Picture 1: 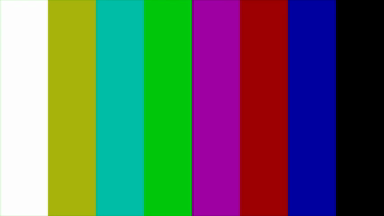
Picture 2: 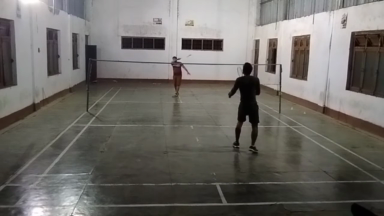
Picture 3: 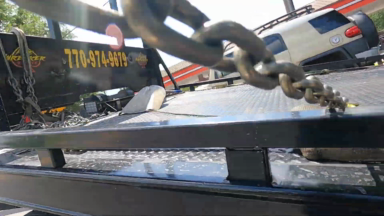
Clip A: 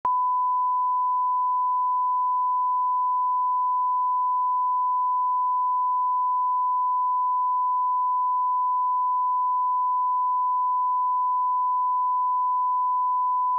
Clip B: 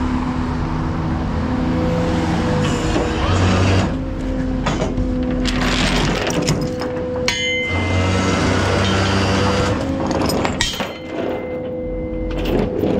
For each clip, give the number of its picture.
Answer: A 1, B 3